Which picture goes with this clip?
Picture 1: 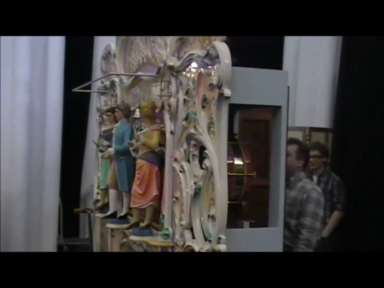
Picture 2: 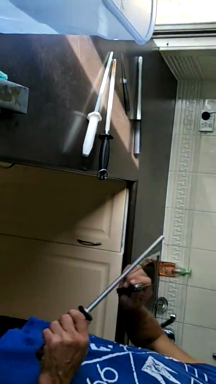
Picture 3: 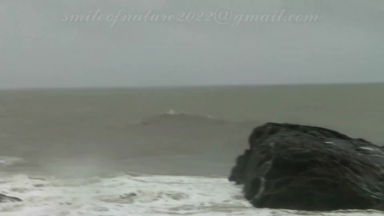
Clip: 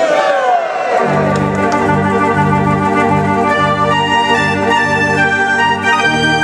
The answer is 1